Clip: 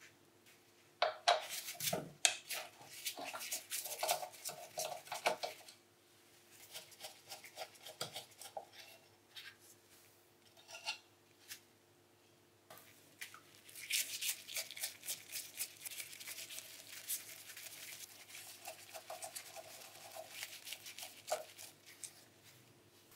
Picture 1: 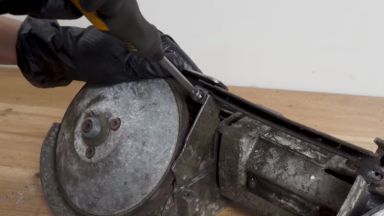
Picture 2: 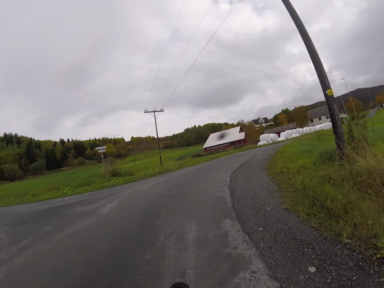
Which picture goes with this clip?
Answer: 1